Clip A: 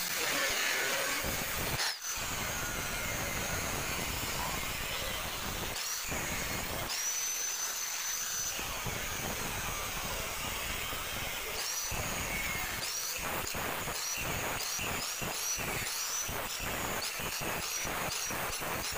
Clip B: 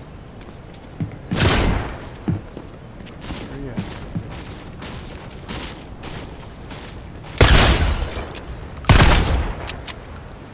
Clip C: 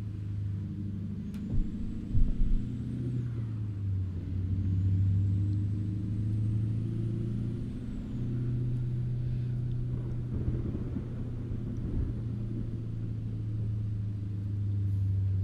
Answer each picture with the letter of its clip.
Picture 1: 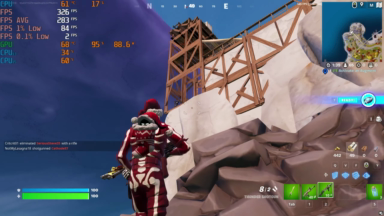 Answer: B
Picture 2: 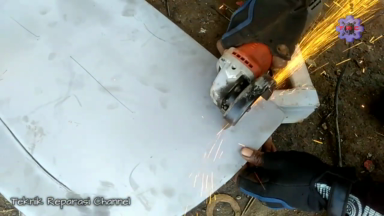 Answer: A